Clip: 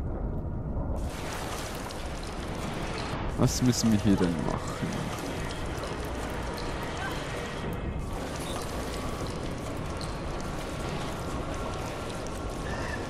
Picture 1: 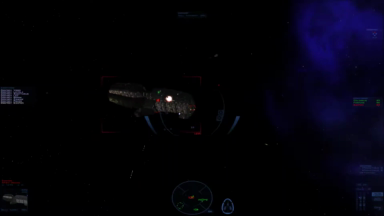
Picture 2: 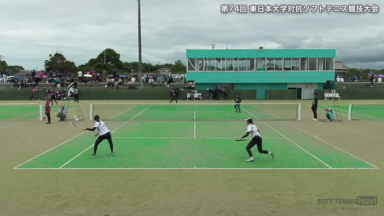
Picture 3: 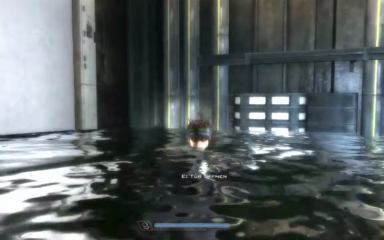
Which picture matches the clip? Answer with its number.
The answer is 3